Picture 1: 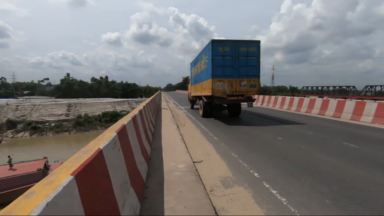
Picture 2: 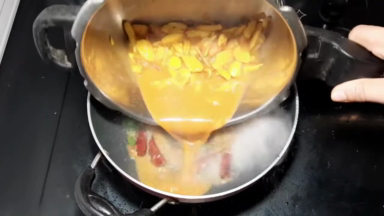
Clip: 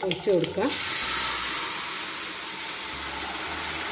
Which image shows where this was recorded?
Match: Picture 2